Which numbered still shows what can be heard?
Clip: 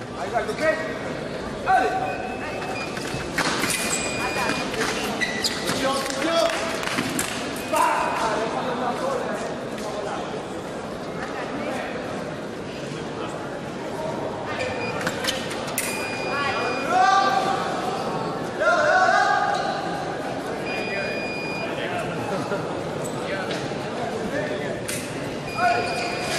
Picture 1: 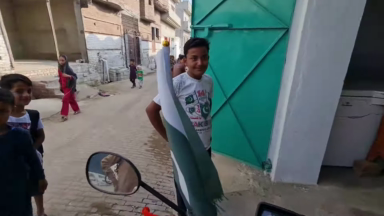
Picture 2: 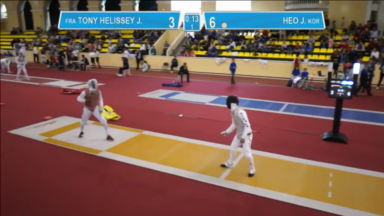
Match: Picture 2